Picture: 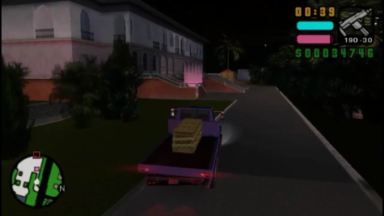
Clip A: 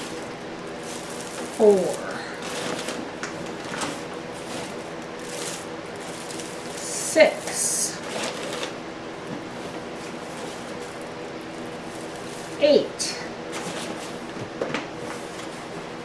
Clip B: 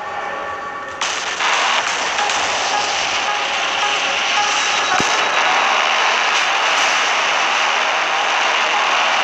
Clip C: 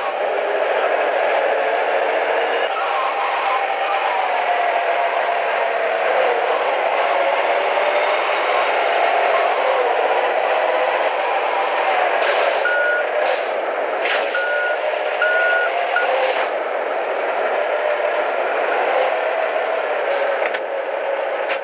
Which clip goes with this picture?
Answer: C